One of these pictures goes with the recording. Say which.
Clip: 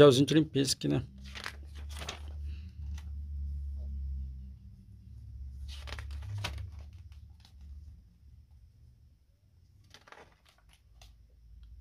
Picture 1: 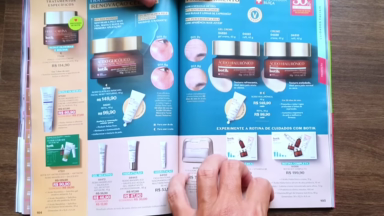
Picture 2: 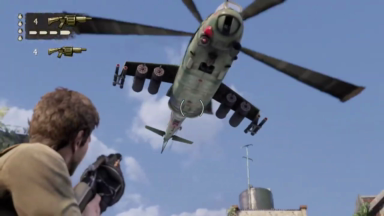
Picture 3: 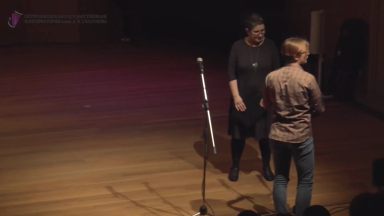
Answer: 1